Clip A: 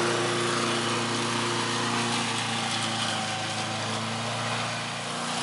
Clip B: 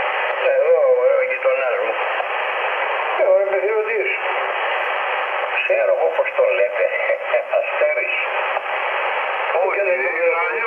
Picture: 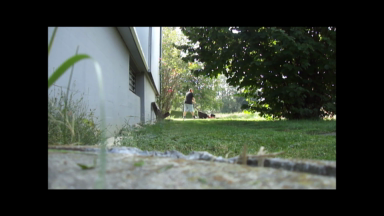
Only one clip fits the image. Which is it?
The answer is A